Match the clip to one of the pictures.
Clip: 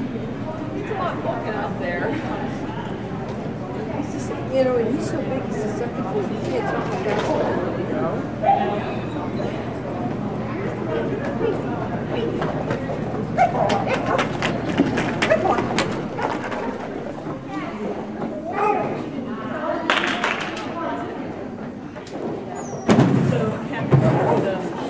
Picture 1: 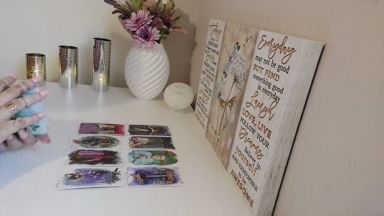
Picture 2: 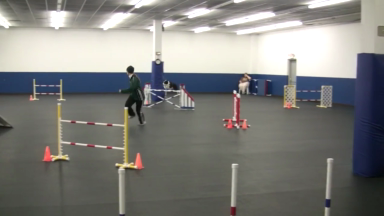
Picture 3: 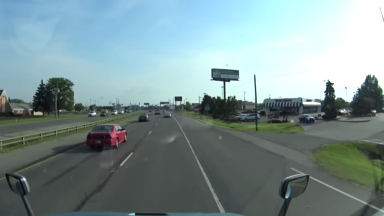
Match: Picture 2